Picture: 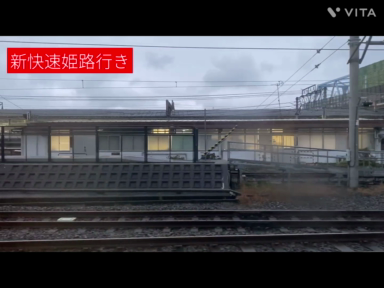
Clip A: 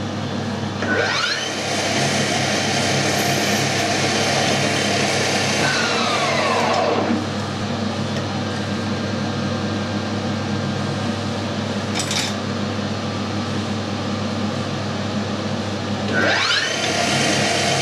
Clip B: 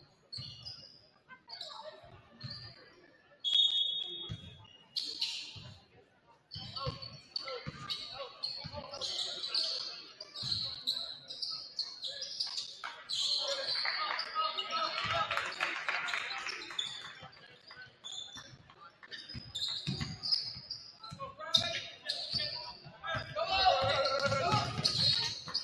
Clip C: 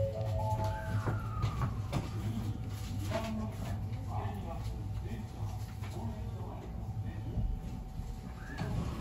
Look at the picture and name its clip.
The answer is C